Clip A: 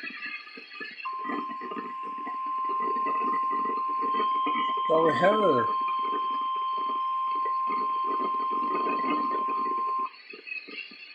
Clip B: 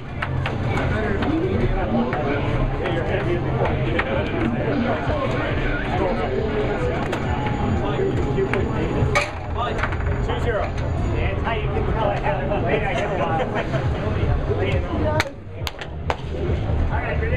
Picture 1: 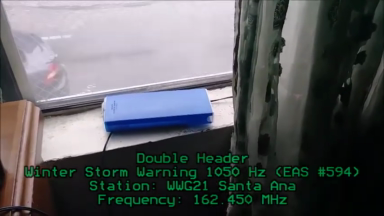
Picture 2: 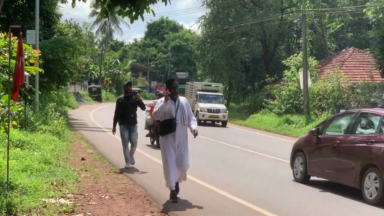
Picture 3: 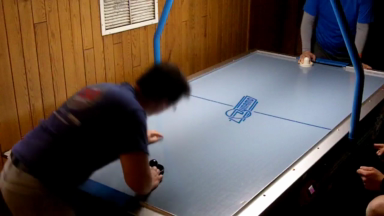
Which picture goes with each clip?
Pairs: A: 1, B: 3